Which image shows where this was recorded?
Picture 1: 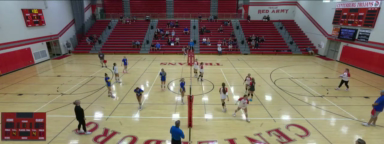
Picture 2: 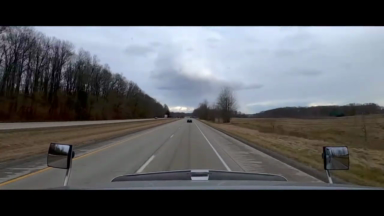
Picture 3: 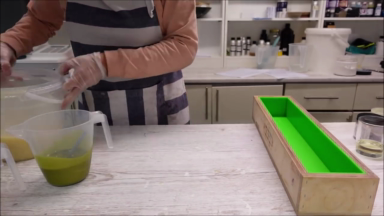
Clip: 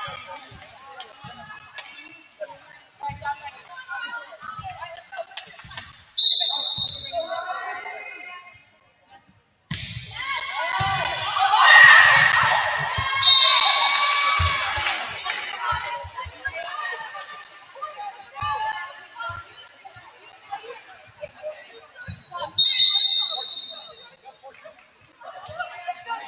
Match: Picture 1